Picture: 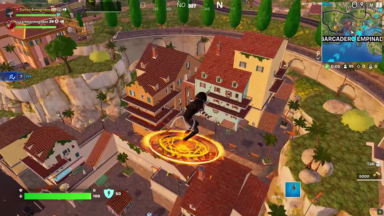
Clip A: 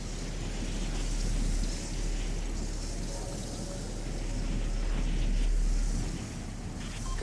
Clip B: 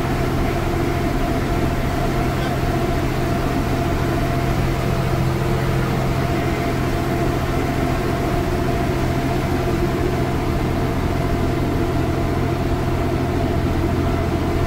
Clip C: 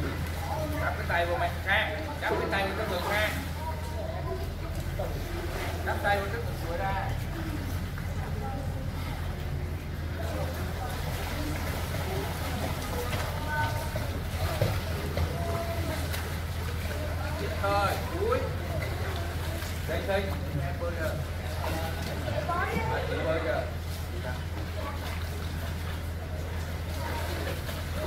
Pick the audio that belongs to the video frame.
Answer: A